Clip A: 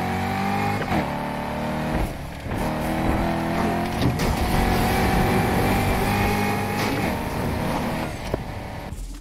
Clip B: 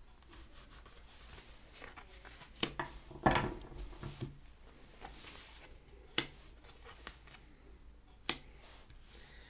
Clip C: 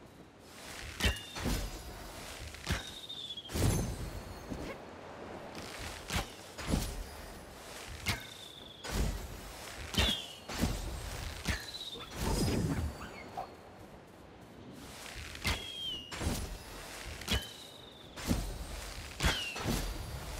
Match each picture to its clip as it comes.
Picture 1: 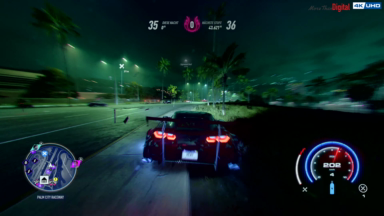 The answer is A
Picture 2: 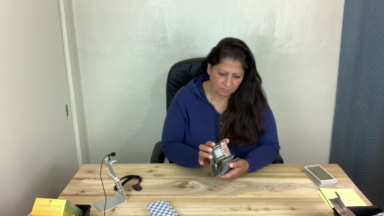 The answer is B